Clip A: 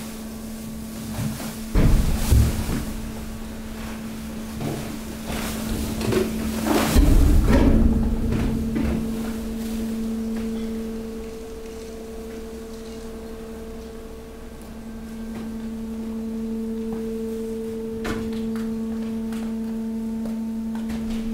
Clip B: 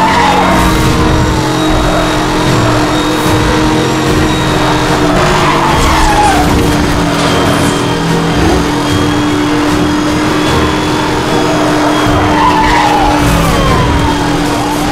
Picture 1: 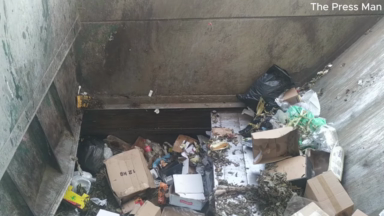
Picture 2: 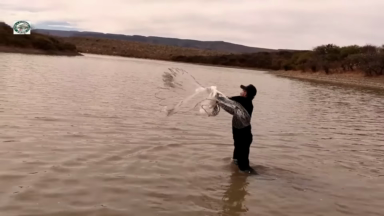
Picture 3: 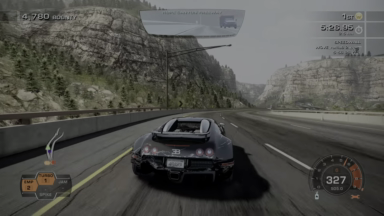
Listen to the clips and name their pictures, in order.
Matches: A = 1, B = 3